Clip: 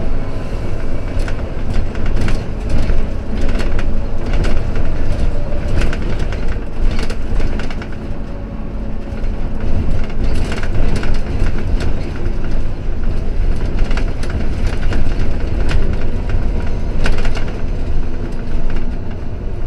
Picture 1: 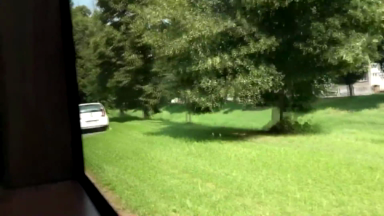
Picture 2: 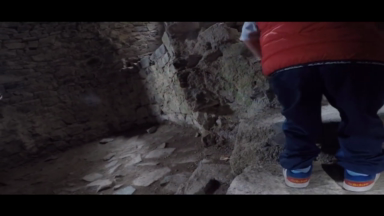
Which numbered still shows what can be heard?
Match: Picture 1